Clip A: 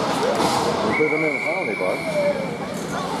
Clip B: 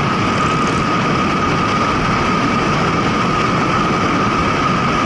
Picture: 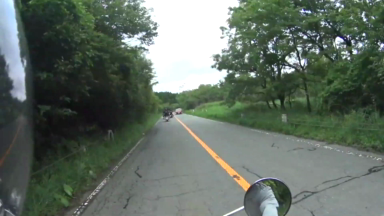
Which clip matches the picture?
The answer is B